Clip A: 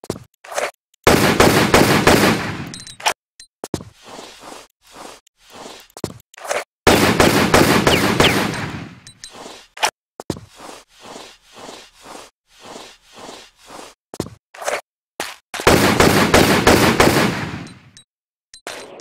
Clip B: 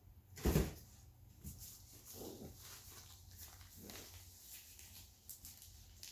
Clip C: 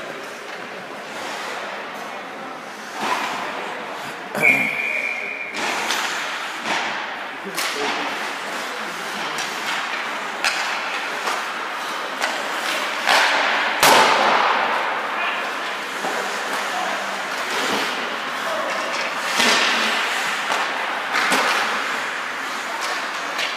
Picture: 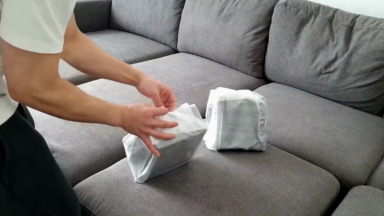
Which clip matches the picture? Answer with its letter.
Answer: B